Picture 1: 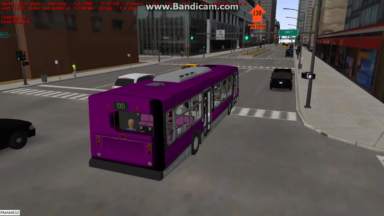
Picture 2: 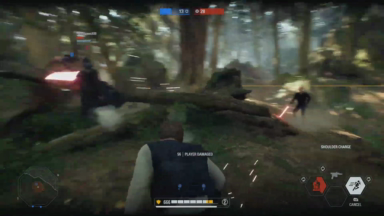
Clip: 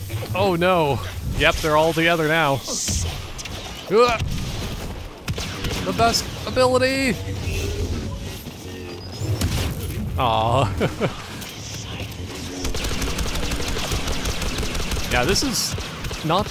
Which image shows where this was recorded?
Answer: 2